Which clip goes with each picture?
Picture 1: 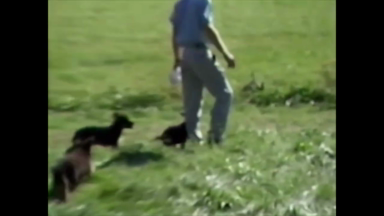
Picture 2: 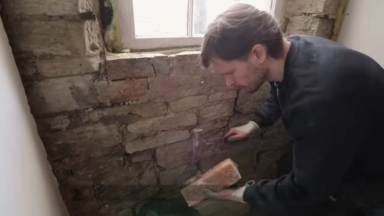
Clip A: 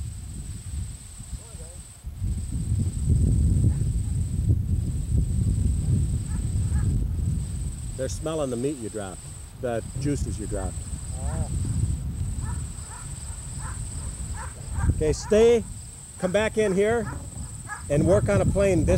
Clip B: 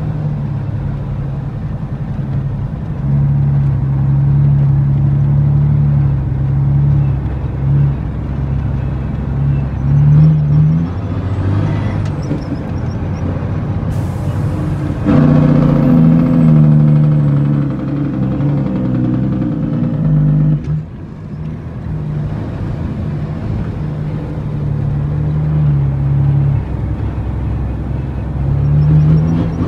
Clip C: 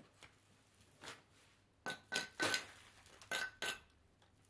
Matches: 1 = A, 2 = C